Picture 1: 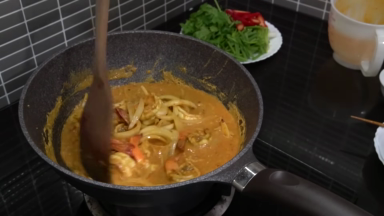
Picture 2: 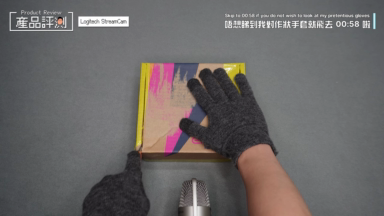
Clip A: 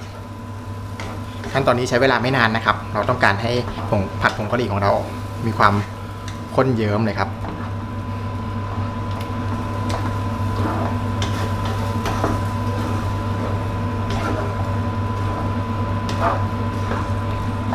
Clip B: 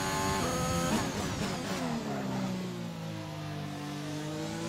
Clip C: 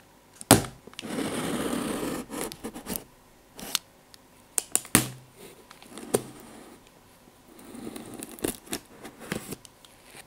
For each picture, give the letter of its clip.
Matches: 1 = A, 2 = C